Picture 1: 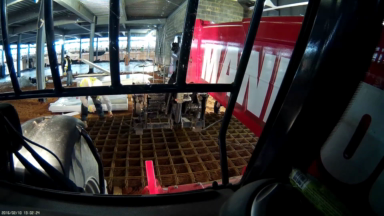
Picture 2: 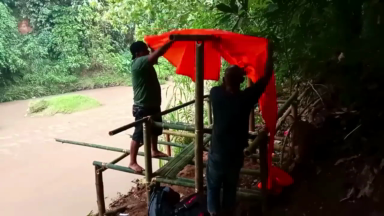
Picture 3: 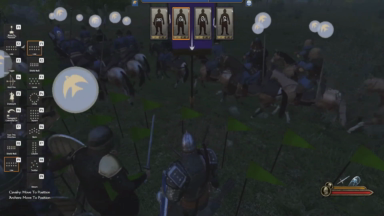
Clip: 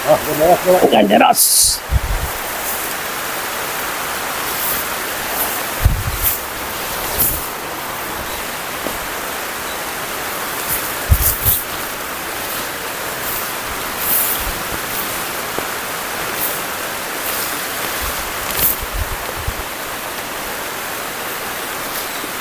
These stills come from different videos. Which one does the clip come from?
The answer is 2